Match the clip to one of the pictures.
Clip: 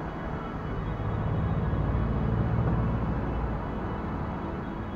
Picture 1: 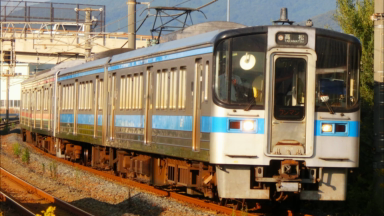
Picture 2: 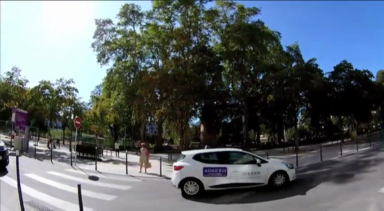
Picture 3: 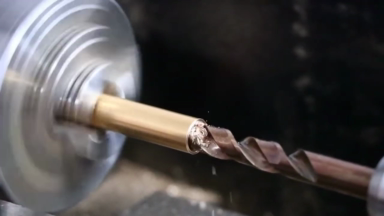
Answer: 2